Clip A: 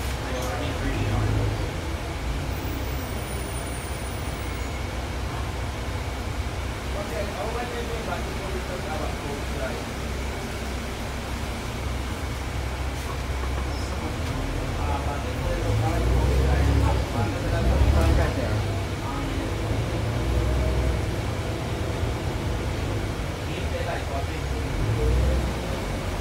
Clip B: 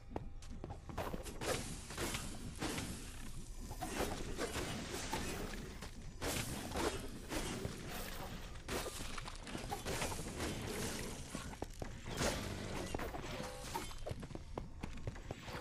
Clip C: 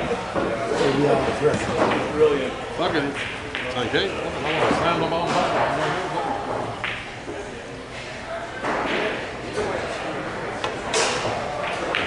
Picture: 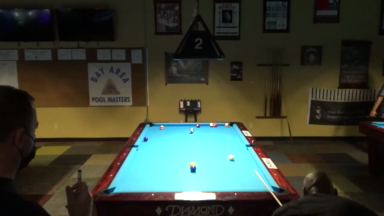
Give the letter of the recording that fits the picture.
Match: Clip C